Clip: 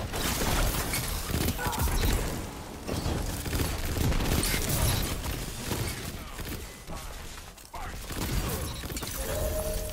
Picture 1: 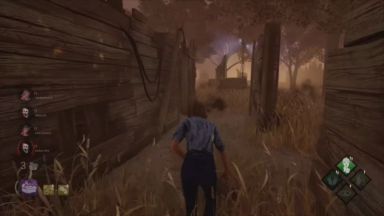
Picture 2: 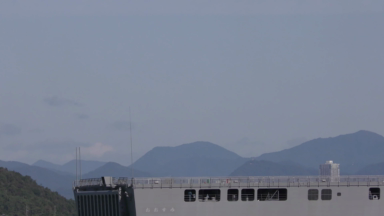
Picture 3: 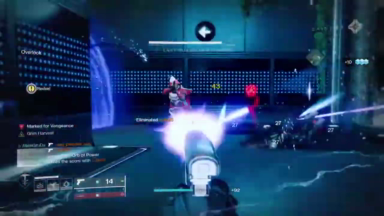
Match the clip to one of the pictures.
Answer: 3